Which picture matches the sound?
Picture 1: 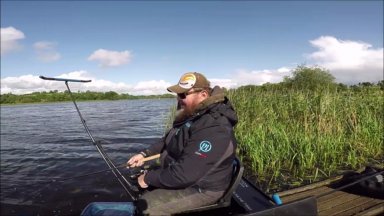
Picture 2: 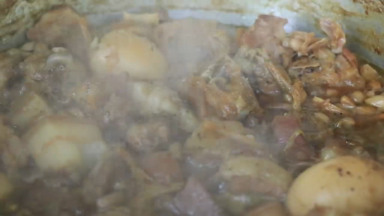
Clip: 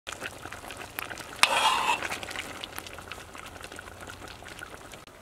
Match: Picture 2